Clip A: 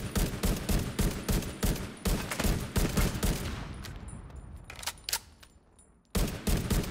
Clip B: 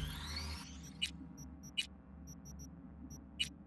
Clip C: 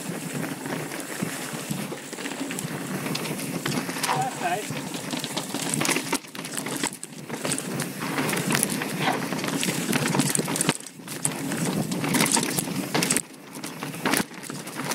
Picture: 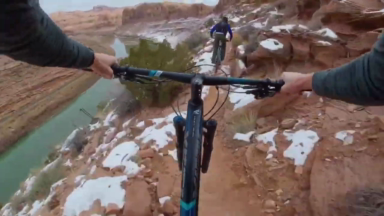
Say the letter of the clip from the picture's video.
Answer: C